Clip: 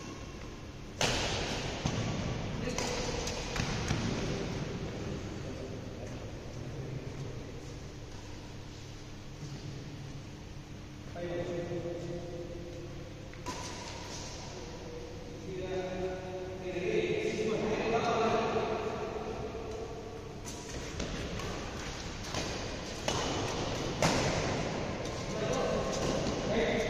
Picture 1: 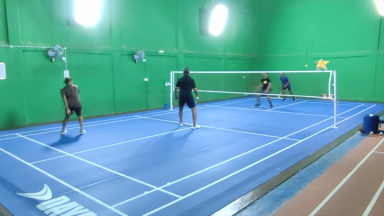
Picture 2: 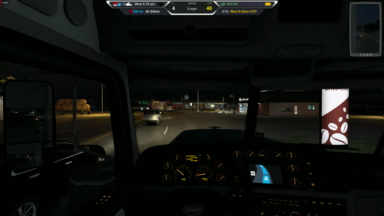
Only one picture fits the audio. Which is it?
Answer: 1